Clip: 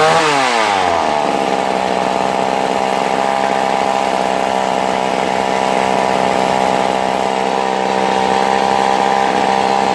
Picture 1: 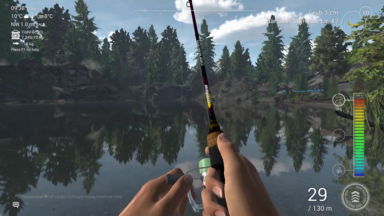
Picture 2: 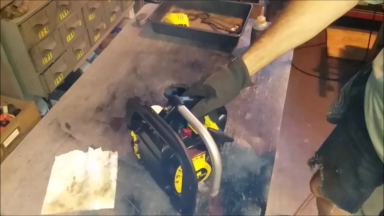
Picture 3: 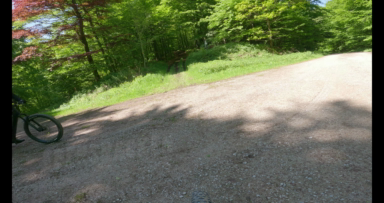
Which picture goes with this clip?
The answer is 2